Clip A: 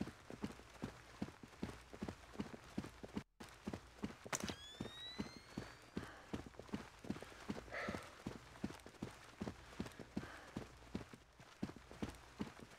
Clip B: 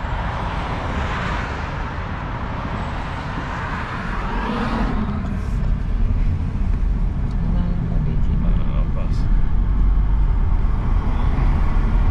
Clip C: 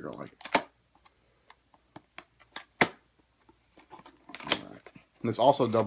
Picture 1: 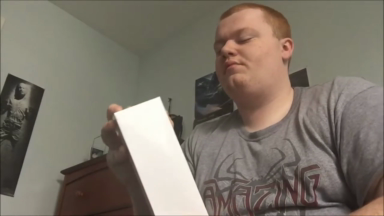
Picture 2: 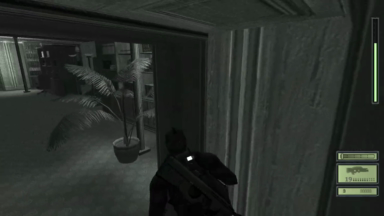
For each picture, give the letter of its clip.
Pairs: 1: C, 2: A